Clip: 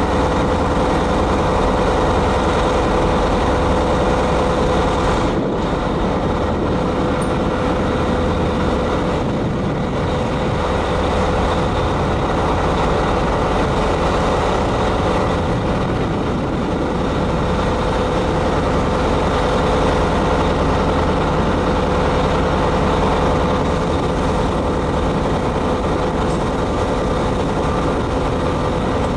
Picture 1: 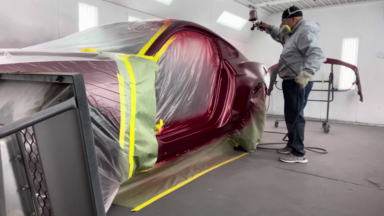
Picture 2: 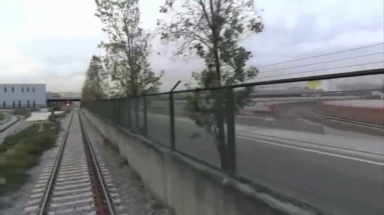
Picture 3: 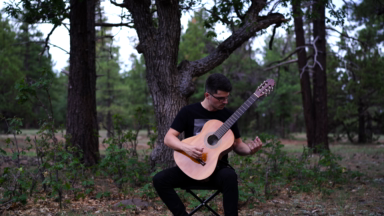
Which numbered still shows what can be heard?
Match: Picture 2